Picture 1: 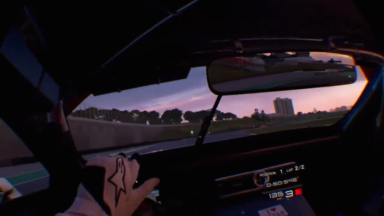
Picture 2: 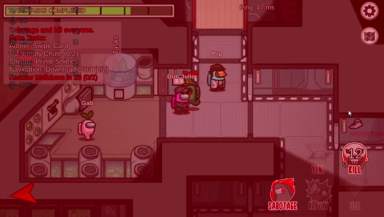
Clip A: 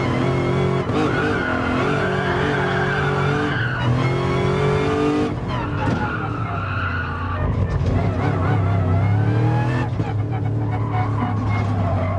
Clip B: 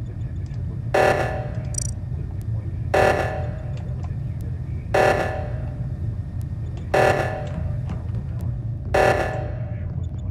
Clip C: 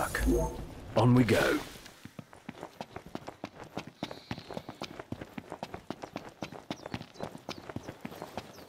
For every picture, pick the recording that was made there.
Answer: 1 A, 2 B